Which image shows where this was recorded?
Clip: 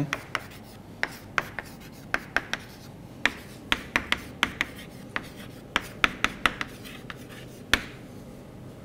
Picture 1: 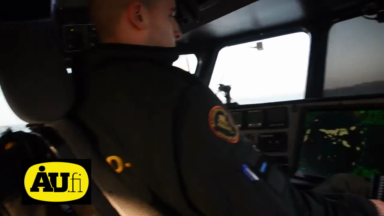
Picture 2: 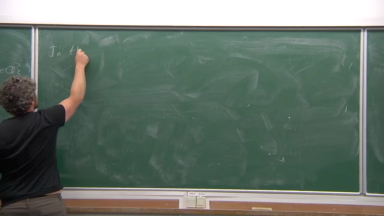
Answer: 2